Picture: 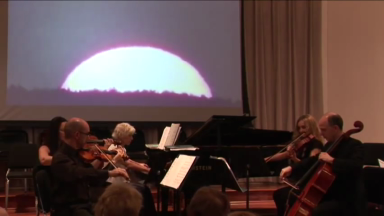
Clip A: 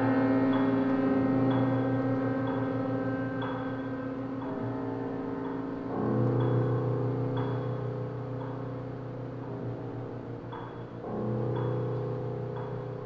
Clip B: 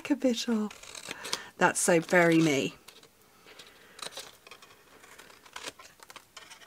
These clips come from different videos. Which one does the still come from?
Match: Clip A